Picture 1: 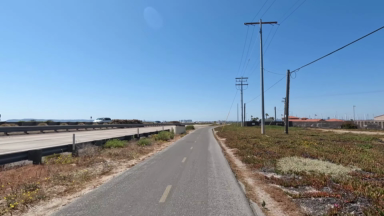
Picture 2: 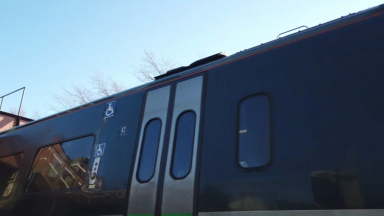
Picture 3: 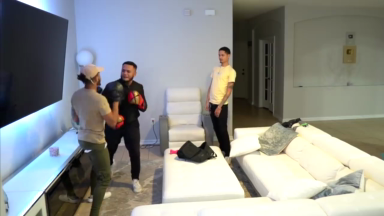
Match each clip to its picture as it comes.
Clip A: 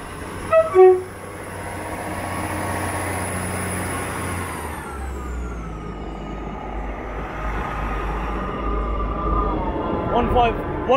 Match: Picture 2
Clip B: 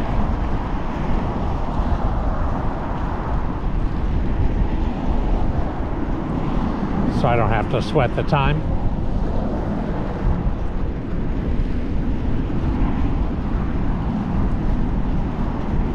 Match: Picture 1